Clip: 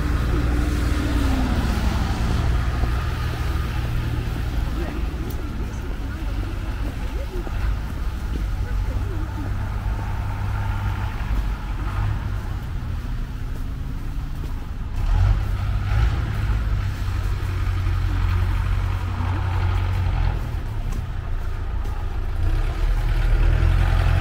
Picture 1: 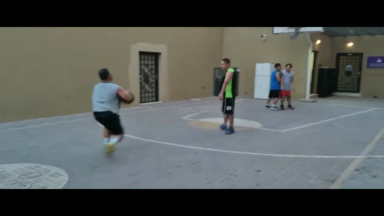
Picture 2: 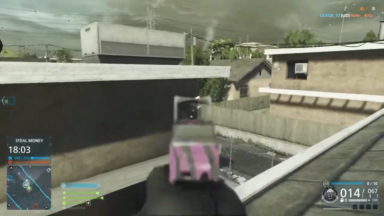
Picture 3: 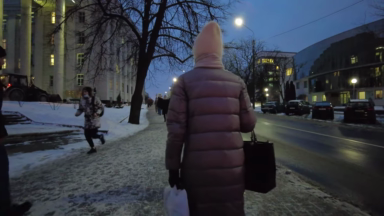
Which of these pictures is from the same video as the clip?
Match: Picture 3